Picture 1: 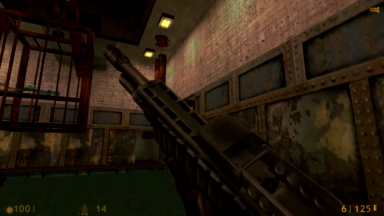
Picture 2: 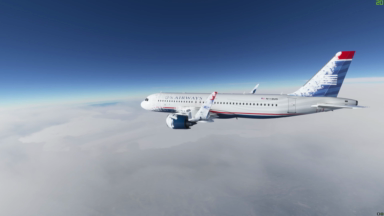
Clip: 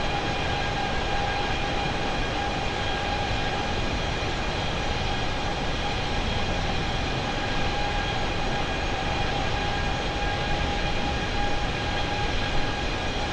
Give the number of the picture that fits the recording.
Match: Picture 2